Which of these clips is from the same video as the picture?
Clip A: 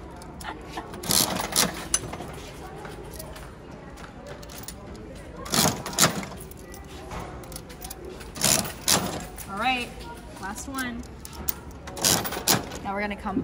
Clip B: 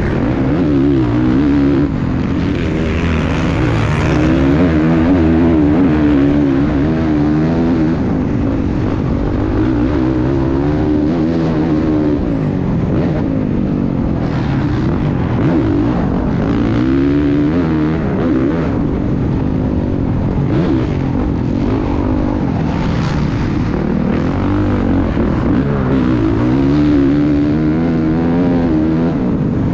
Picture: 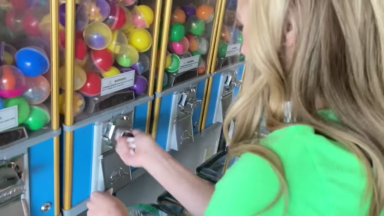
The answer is A